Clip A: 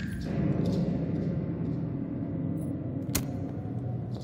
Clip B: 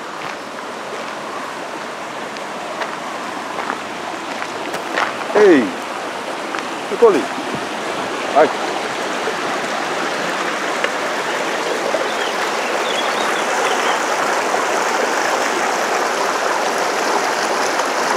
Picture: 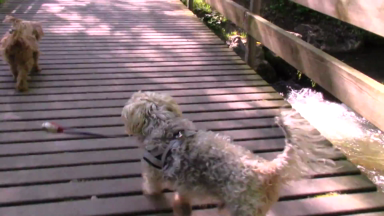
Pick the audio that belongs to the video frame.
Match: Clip B